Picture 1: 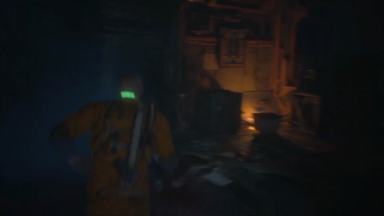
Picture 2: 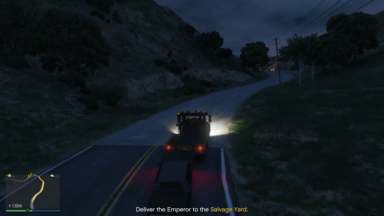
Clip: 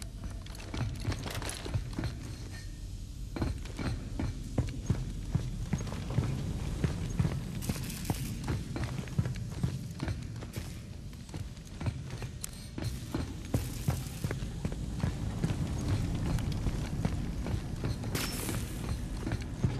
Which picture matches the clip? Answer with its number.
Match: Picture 1